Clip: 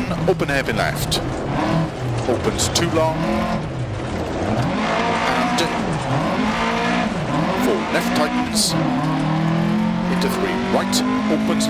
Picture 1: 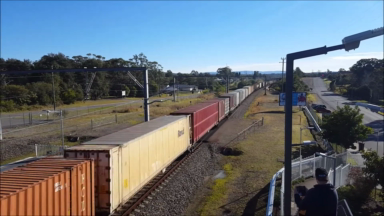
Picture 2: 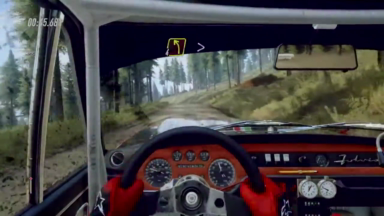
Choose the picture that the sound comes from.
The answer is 2